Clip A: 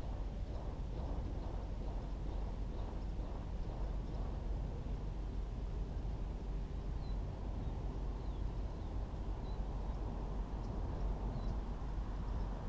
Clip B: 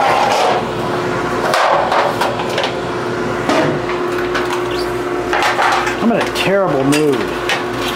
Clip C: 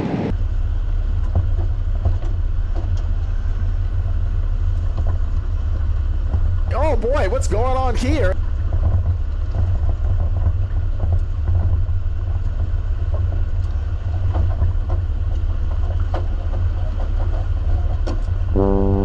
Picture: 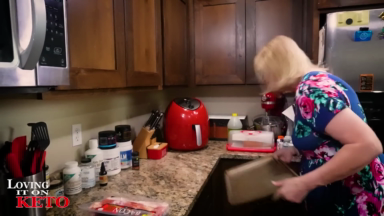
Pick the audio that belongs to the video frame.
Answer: B